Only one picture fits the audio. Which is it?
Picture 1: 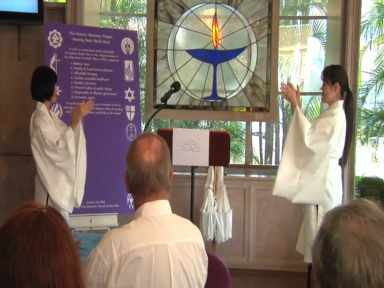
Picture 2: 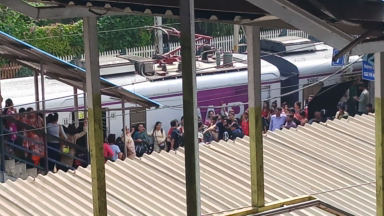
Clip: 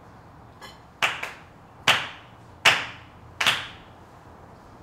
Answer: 1